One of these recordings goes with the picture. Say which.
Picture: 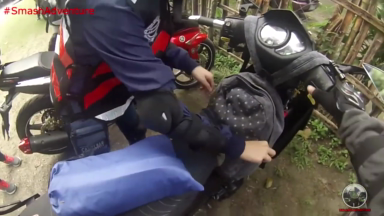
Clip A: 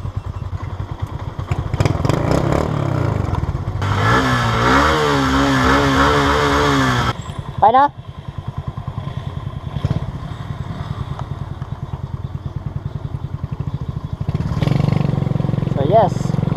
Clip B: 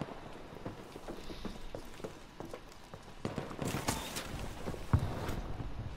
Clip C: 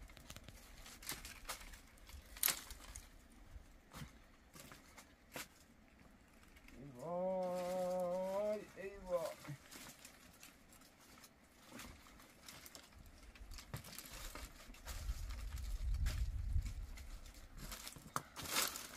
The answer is A